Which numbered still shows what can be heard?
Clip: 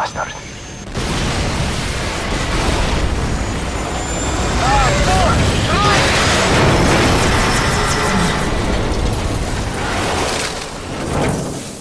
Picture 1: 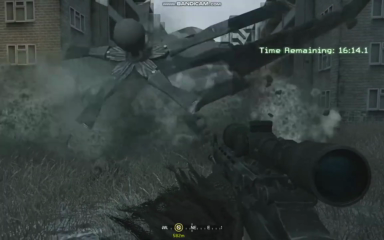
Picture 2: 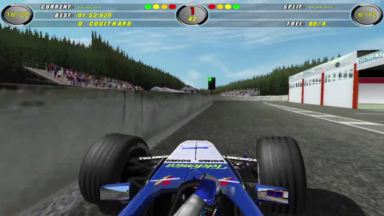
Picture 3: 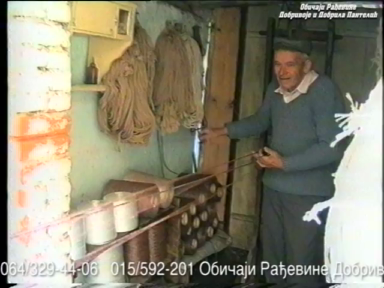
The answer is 1